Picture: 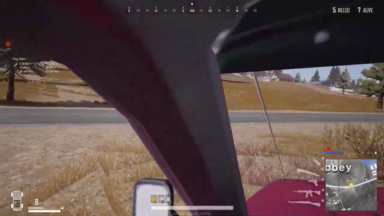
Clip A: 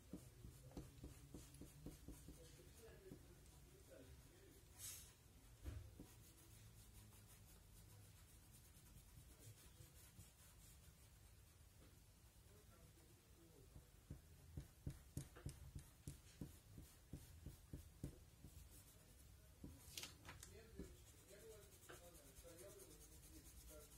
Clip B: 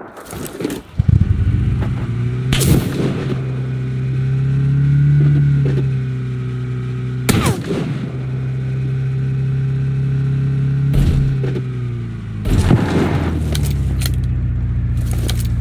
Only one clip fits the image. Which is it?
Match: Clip B